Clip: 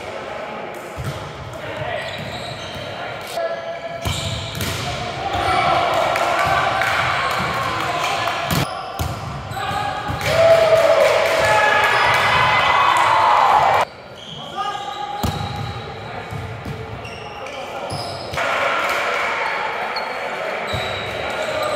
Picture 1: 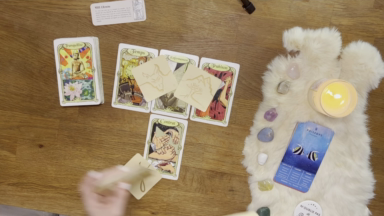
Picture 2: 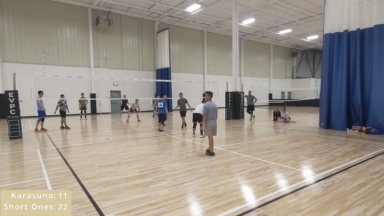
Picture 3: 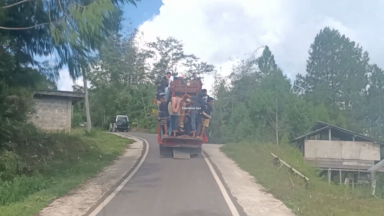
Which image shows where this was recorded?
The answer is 2